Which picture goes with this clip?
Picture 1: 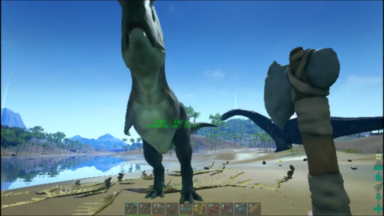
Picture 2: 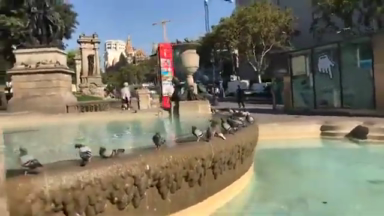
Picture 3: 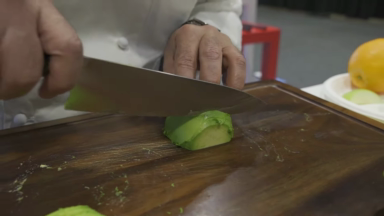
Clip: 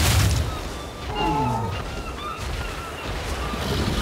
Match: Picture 1